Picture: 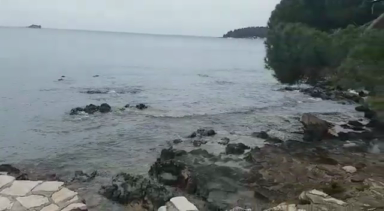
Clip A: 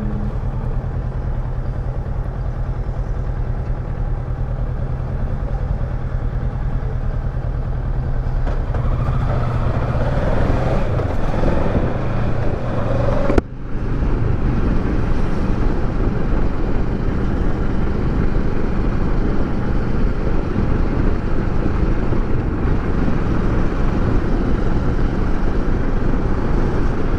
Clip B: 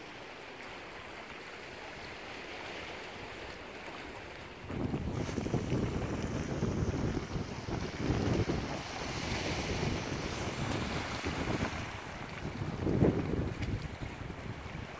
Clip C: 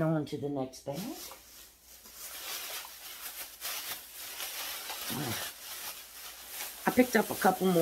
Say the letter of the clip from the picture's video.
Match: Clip B